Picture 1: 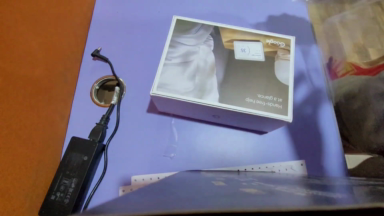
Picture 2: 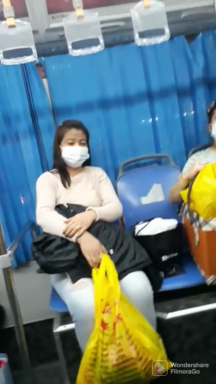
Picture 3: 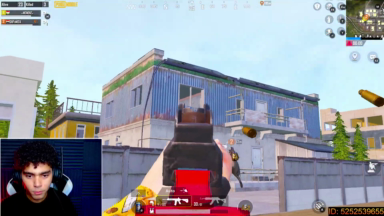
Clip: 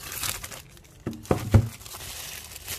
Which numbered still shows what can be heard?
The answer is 1